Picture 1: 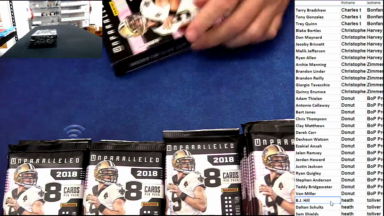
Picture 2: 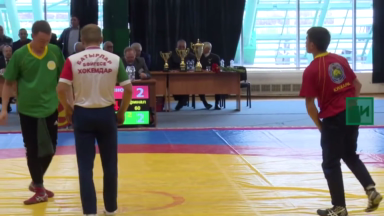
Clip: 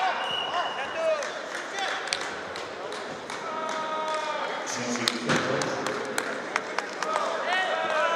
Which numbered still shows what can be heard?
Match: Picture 2